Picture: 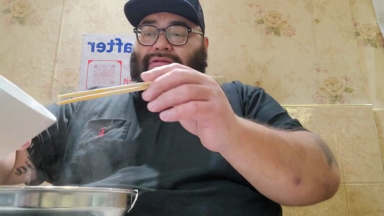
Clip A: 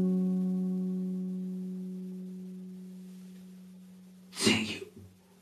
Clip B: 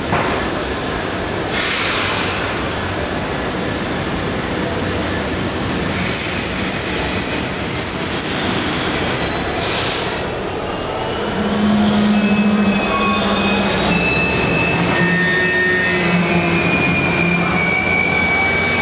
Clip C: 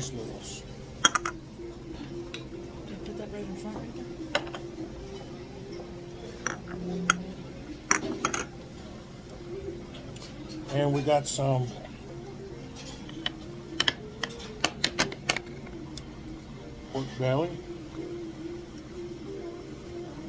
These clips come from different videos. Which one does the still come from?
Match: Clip C